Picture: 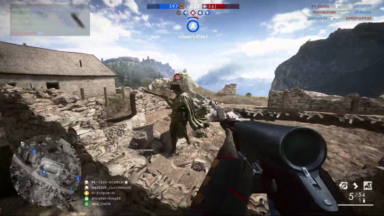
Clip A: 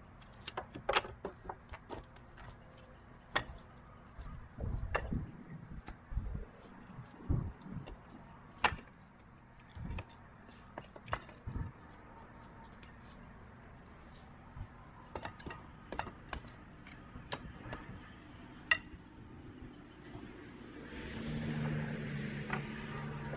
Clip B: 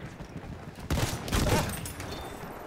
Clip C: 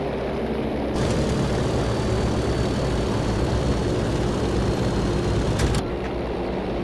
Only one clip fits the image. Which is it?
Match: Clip B